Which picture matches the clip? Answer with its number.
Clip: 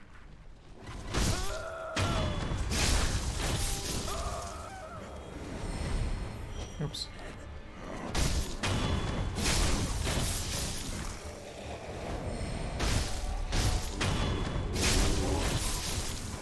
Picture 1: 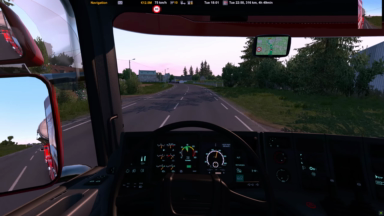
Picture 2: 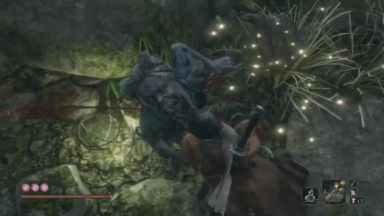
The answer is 2